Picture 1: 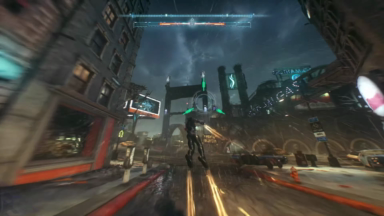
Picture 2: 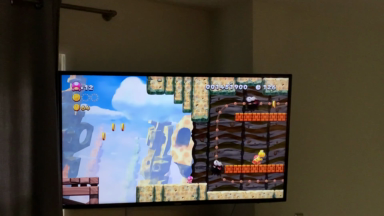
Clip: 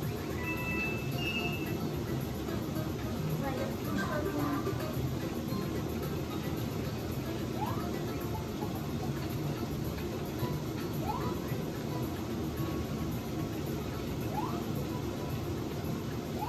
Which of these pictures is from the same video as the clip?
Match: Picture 2